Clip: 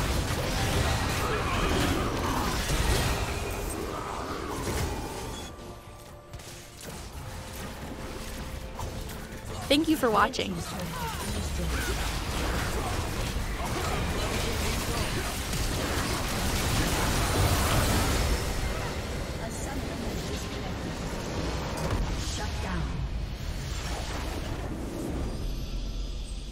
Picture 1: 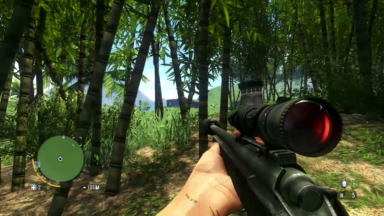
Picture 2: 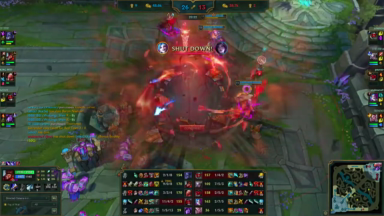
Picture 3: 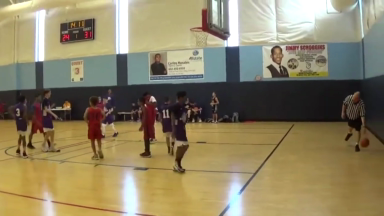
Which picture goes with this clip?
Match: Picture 2